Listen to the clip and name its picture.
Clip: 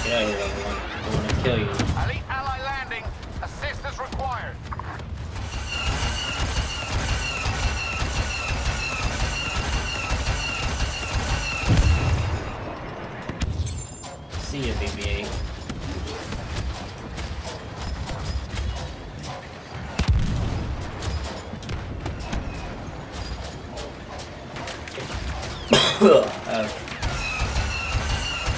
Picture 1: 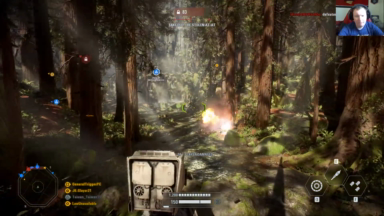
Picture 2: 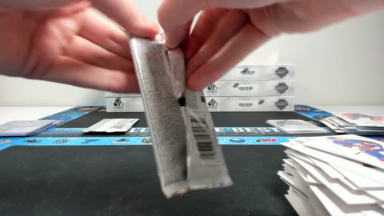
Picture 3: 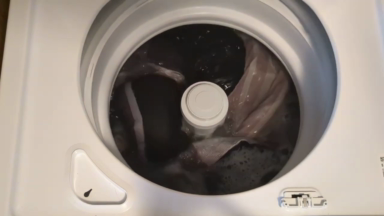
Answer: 1